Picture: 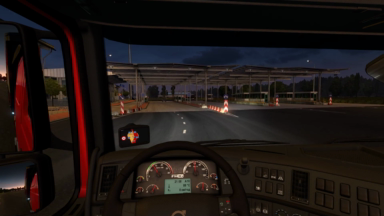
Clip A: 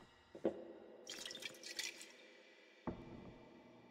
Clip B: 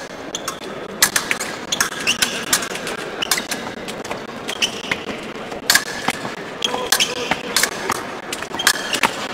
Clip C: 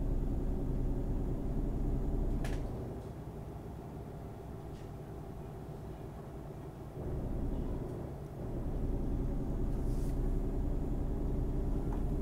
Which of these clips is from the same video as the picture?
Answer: C